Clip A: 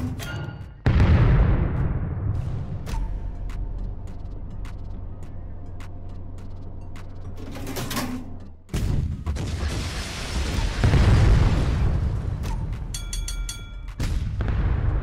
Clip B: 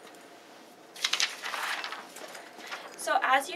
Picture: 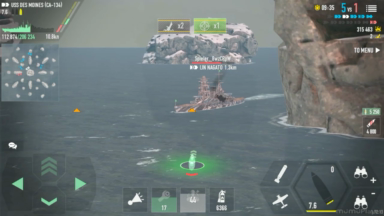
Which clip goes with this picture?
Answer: A